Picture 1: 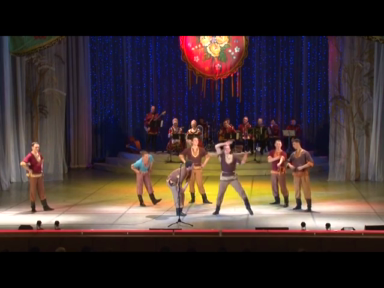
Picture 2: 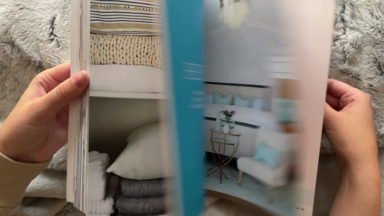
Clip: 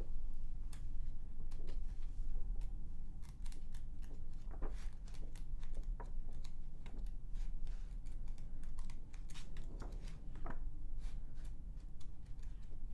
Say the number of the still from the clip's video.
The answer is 2